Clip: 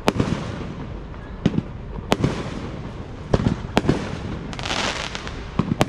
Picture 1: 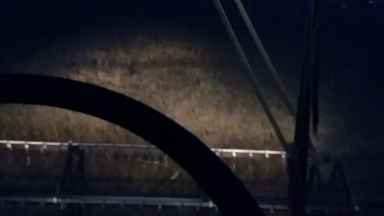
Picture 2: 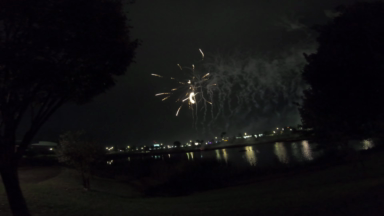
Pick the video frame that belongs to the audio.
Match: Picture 2